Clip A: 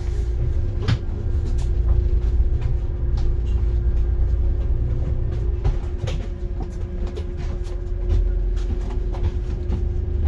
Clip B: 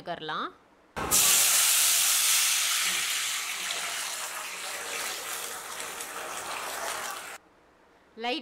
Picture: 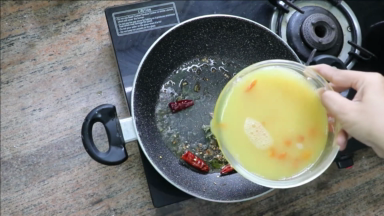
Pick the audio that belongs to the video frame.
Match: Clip B